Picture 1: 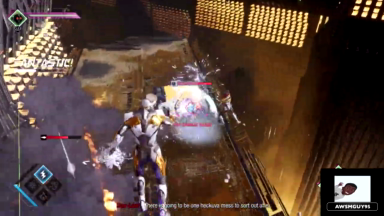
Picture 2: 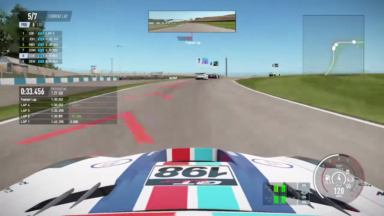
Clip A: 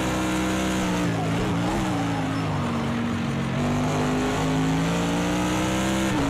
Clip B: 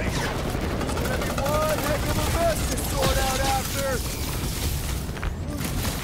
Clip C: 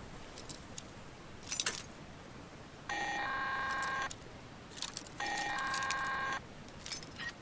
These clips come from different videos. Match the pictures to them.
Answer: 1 B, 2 A